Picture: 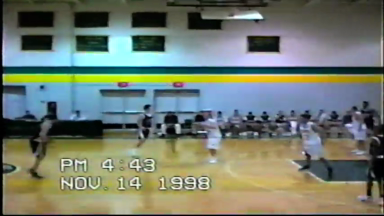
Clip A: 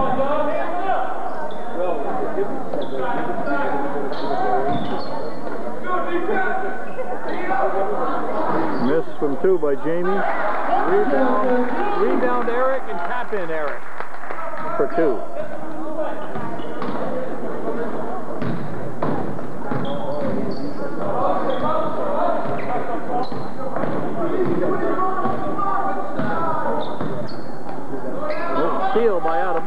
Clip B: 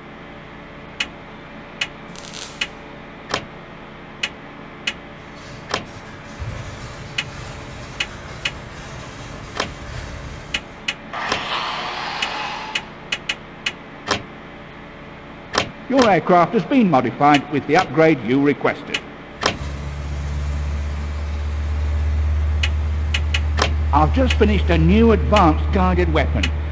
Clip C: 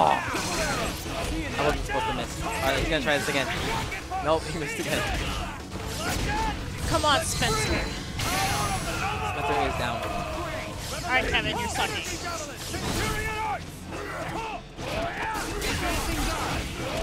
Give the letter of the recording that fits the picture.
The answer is A